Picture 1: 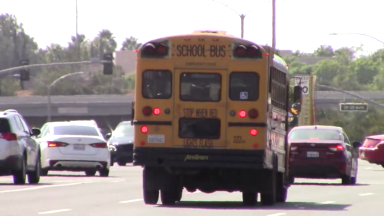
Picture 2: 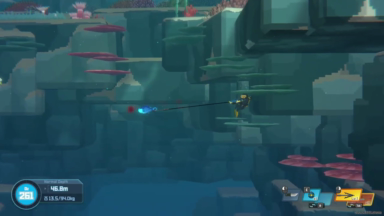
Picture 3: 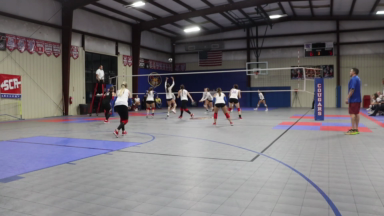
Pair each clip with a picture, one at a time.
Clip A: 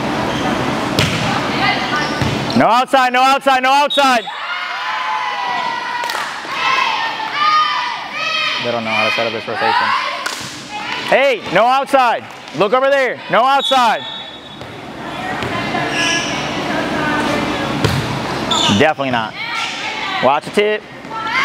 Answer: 3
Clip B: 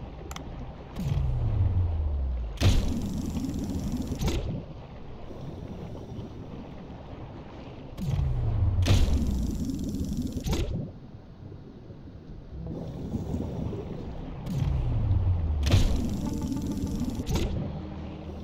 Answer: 2